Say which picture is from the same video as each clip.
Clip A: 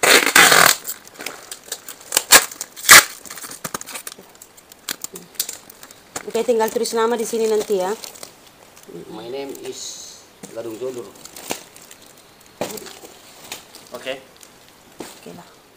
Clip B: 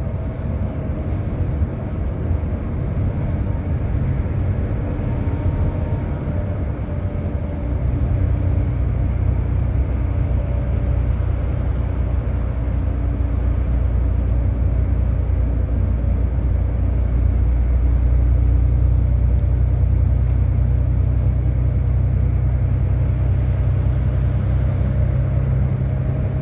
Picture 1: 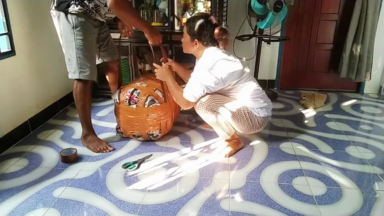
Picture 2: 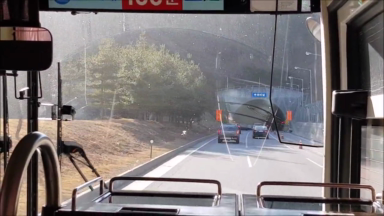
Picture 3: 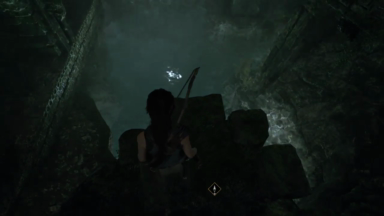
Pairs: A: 1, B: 2